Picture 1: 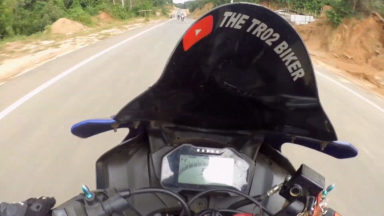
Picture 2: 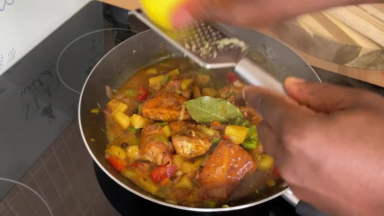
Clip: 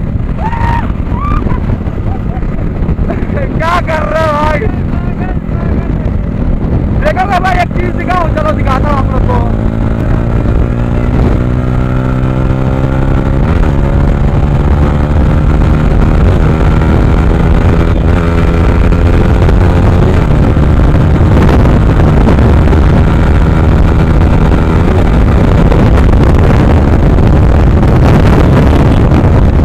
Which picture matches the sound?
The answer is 1